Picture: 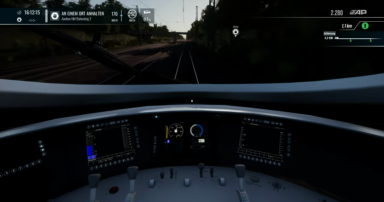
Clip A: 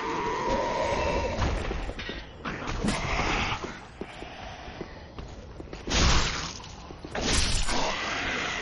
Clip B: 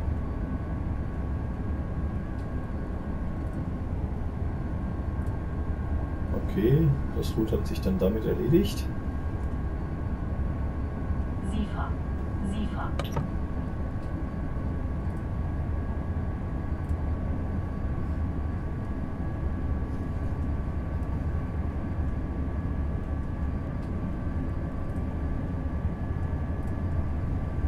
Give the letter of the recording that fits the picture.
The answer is B